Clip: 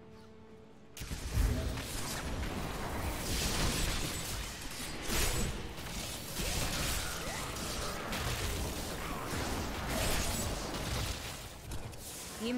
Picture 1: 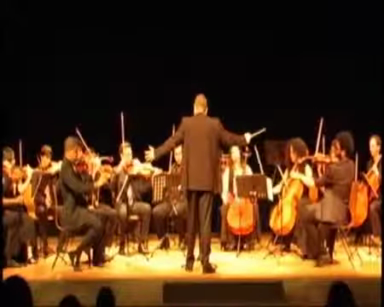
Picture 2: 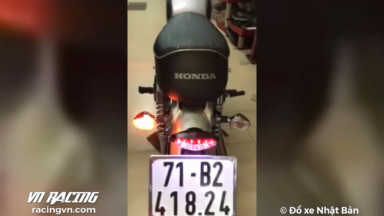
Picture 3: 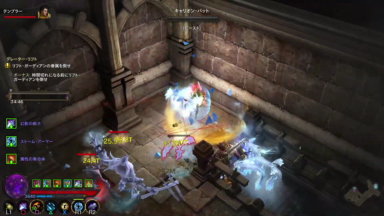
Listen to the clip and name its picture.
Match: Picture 3